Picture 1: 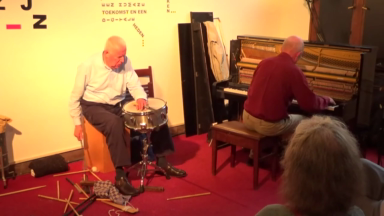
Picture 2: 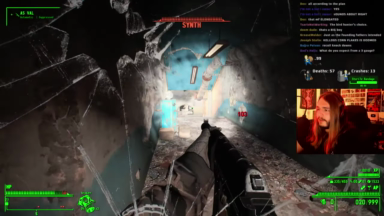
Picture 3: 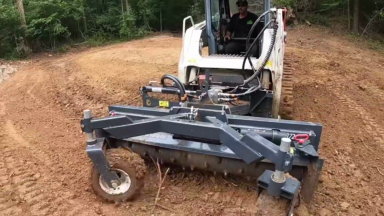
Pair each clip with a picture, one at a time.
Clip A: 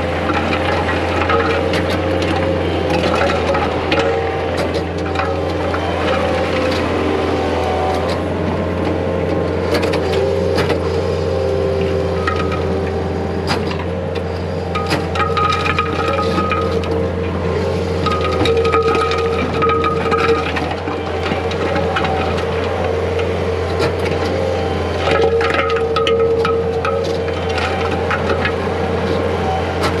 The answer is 3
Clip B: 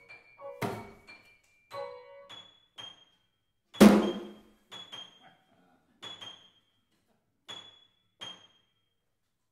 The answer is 1